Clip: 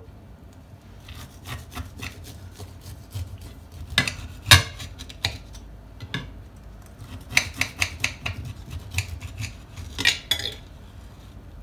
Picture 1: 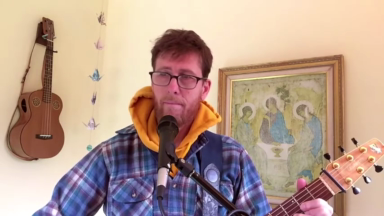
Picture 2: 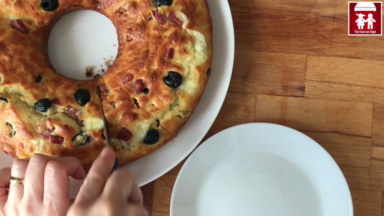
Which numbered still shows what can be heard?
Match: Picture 2